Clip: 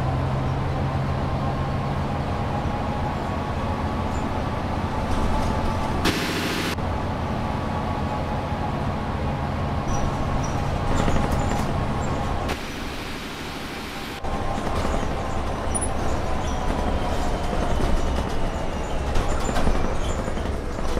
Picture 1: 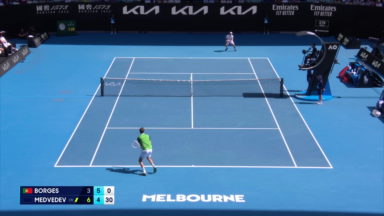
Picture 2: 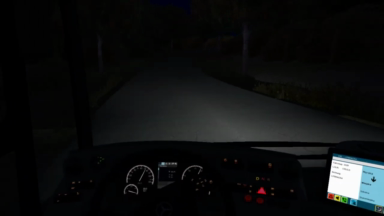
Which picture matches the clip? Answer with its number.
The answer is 2